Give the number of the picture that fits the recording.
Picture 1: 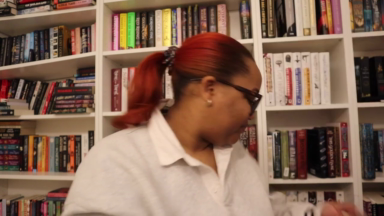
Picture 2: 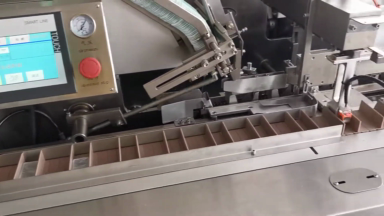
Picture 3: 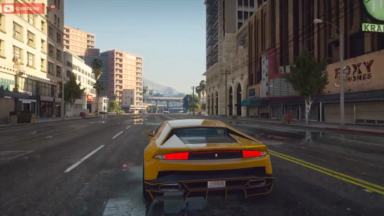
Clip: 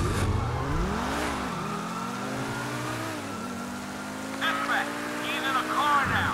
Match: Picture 3